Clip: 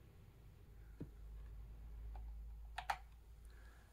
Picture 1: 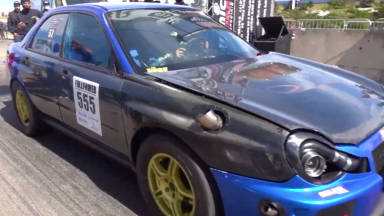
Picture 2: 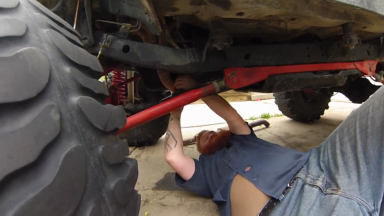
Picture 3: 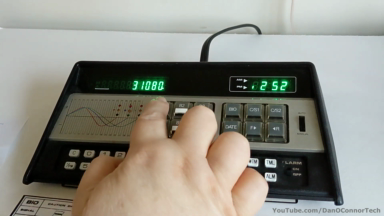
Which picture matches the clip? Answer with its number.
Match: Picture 3